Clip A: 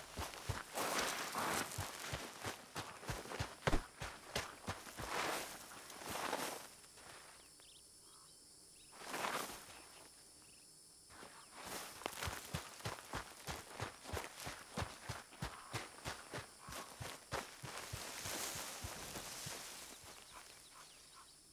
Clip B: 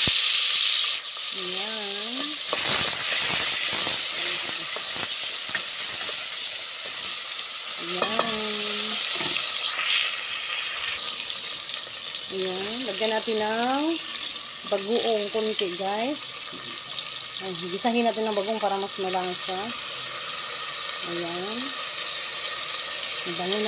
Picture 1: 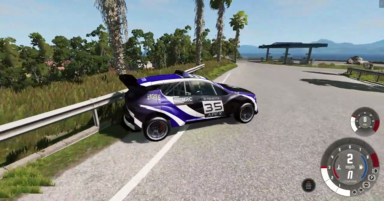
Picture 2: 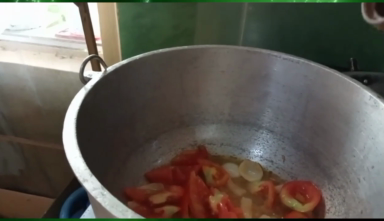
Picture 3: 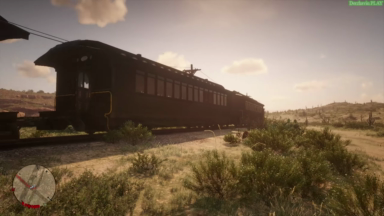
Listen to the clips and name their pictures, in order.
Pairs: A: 3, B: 2